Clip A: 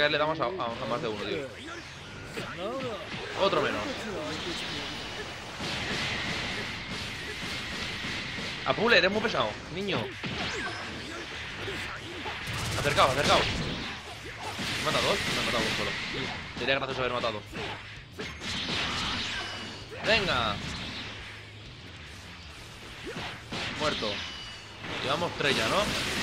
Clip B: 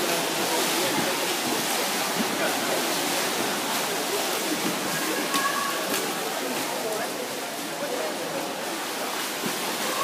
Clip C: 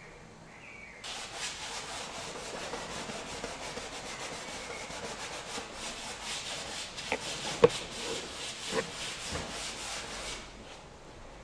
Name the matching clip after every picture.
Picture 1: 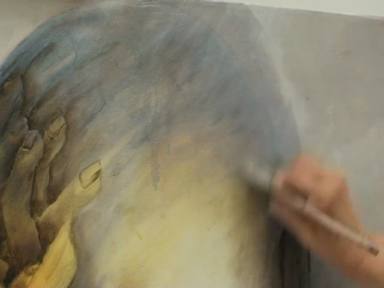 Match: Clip C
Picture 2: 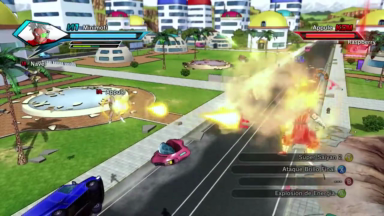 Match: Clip A